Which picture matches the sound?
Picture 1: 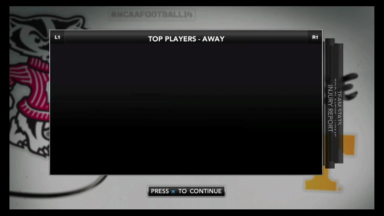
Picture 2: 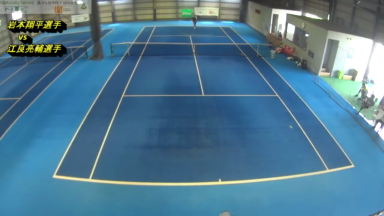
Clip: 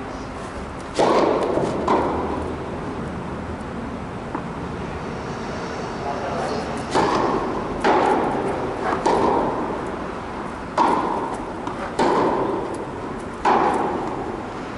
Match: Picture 2